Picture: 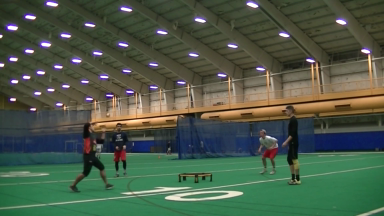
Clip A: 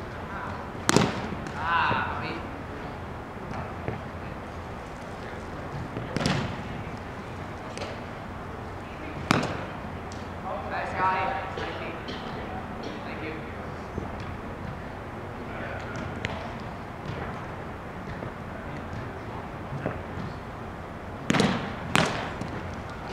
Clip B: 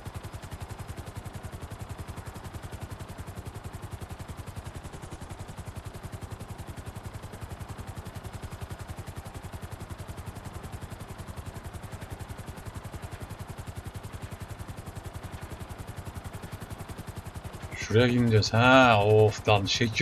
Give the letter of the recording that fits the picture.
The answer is A